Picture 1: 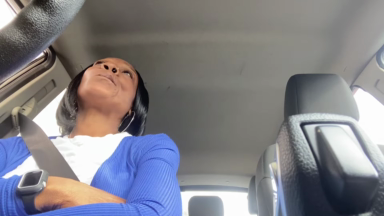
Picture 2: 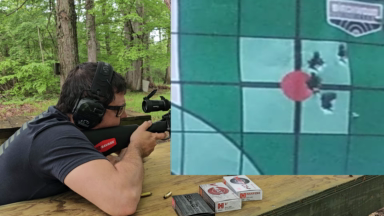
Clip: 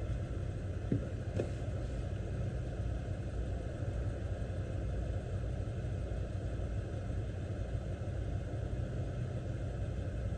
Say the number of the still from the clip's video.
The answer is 1